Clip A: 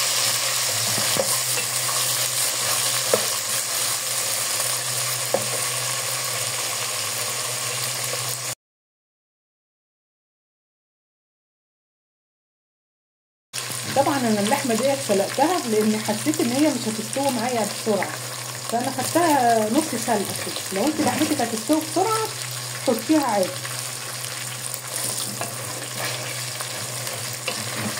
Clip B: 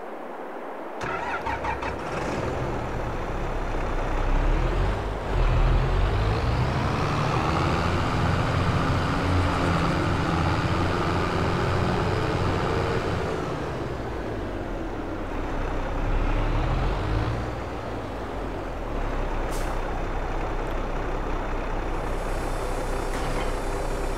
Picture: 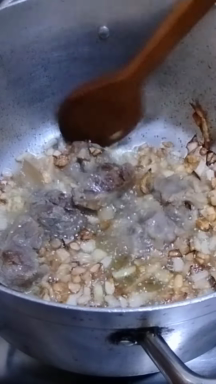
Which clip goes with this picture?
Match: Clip A